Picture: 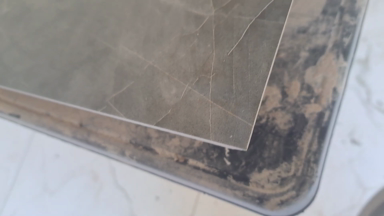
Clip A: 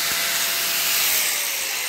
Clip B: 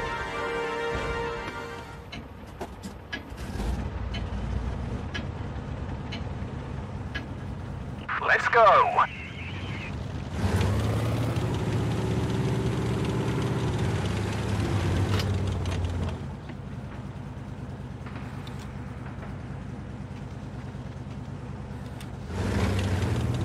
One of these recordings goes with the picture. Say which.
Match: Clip A